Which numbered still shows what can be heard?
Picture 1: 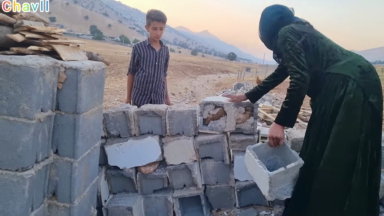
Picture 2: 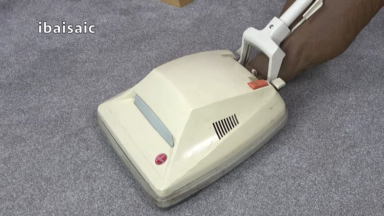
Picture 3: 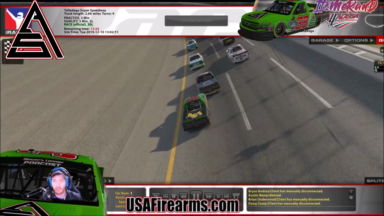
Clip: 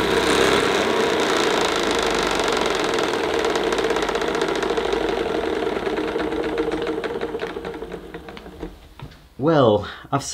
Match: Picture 2